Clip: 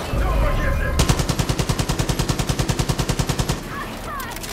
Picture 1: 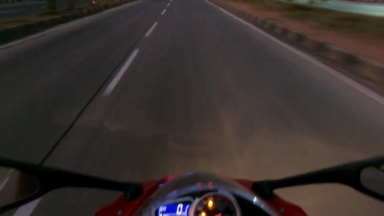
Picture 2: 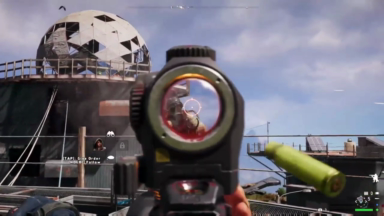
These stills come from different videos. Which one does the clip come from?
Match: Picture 2